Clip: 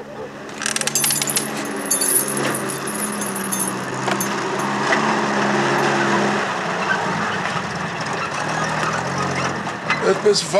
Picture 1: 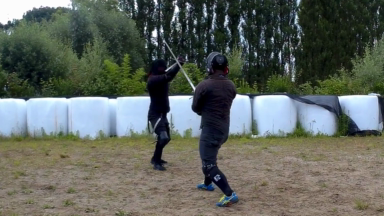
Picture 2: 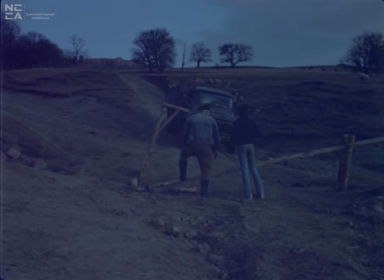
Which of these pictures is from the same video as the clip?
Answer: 2